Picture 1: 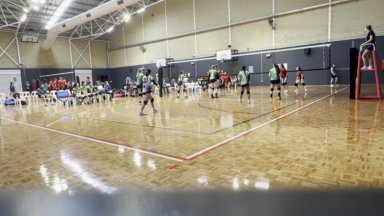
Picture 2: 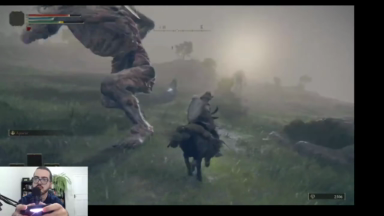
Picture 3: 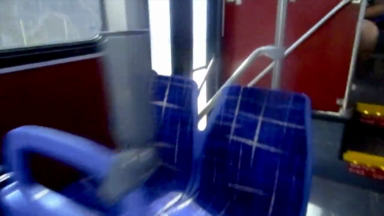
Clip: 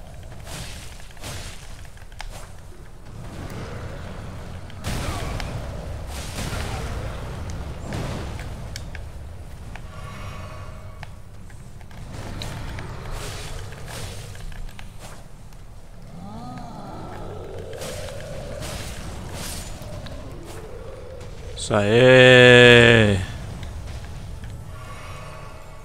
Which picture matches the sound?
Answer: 2